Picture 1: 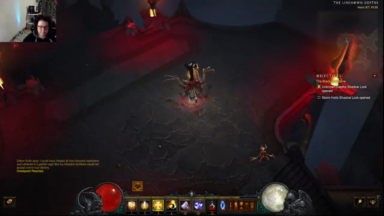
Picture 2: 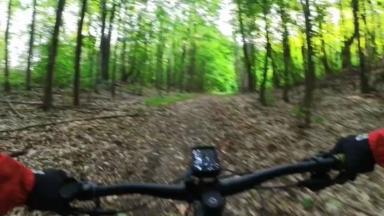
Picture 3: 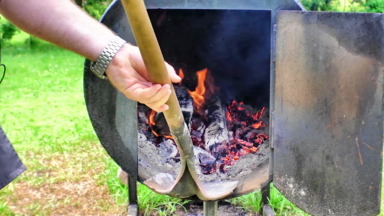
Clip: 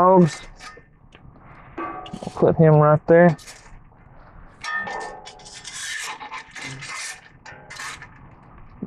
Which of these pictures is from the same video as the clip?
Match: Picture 3